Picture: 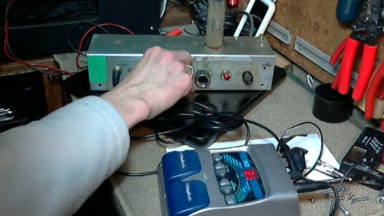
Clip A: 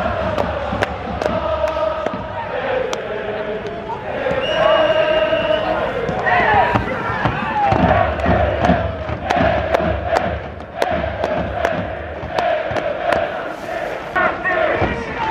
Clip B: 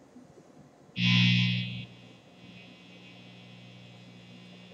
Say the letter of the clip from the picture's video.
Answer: B